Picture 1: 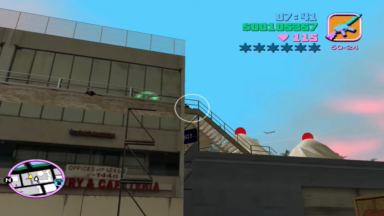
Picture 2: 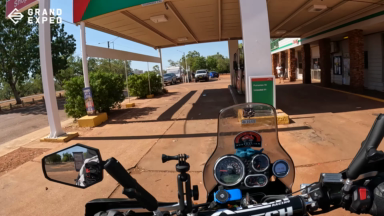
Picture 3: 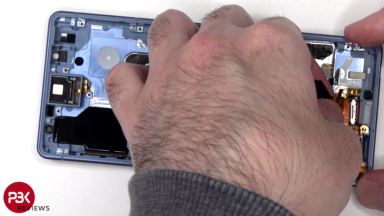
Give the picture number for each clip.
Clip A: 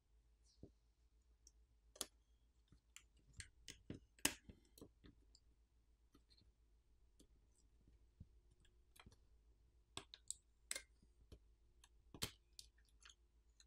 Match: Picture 3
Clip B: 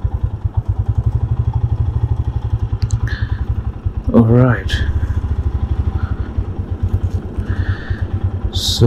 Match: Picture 2